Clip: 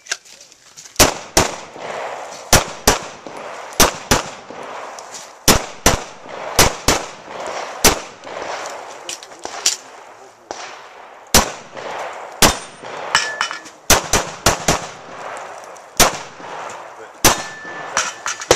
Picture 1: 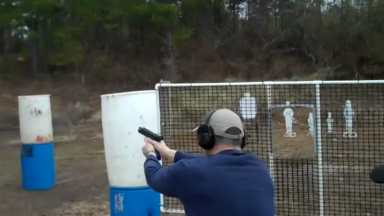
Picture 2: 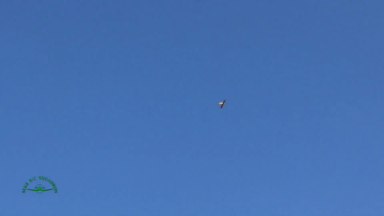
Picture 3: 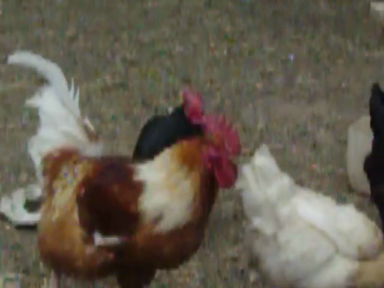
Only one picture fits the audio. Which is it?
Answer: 1